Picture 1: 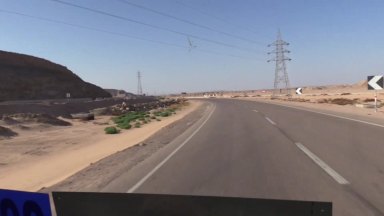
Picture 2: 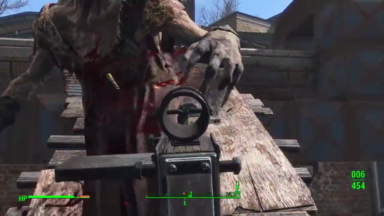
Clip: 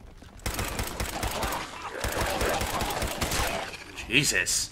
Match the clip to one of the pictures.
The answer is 2